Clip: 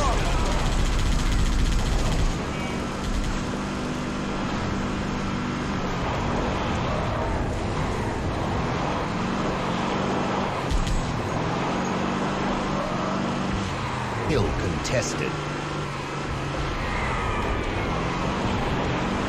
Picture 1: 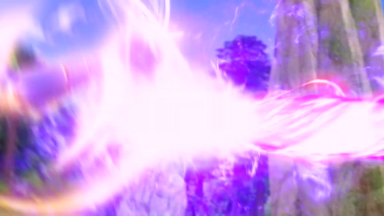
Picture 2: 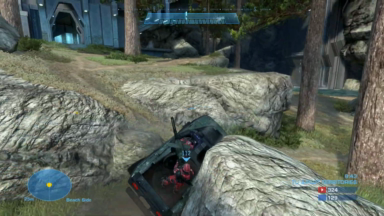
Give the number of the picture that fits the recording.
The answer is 2